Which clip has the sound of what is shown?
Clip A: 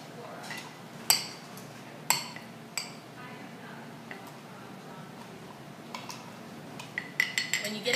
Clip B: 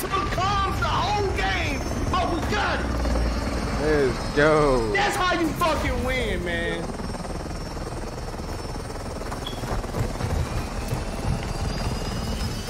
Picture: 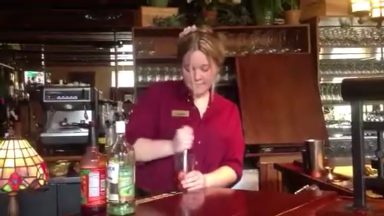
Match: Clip A